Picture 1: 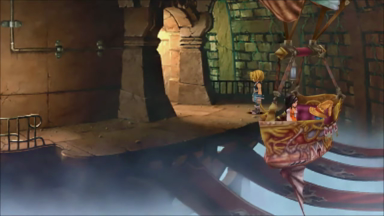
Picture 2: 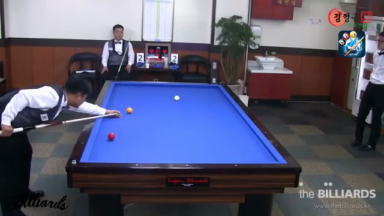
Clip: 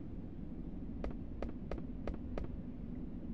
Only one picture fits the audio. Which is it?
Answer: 1